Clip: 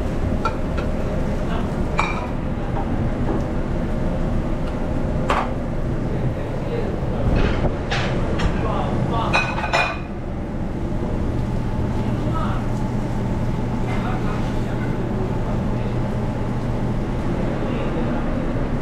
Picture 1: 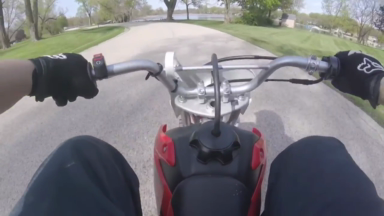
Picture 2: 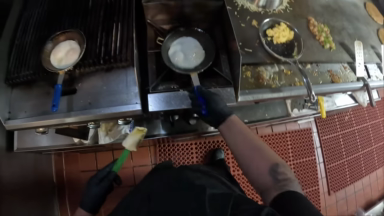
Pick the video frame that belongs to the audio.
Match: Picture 2